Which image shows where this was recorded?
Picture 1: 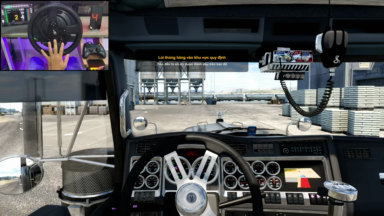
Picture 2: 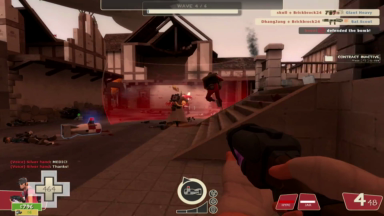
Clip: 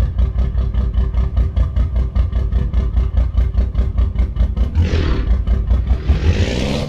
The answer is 1